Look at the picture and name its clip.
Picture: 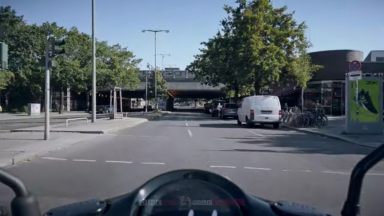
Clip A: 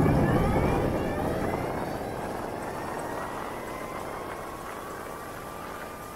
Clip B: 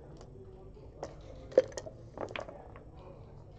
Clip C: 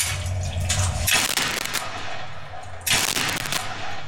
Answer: A